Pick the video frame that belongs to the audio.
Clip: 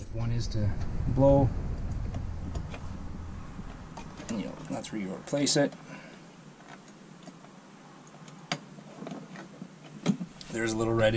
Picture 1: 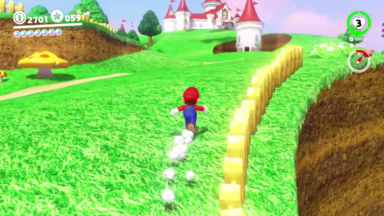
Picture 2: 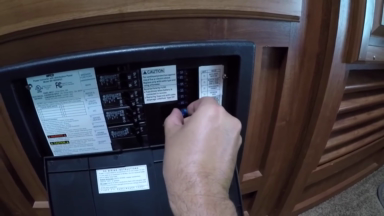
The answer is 2